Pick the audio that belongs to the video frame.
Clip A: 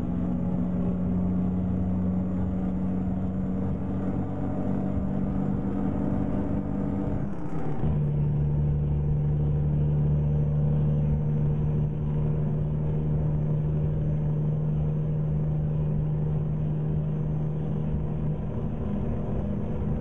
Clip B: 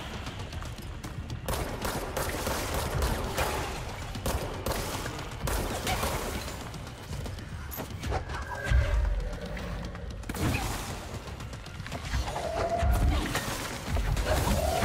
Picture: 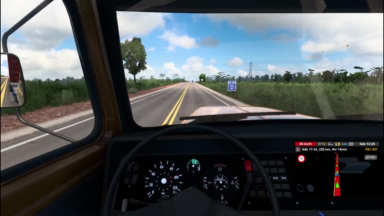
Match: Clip A